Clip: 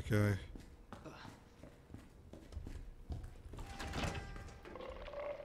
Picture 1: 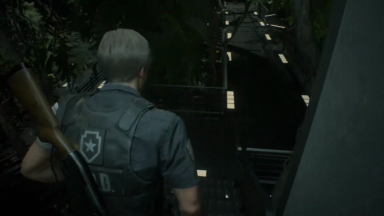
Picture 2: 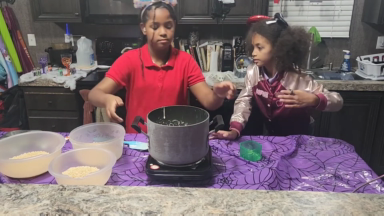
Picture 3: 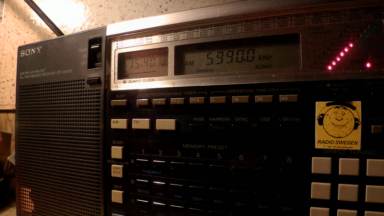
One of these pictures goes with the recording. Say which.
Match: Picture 1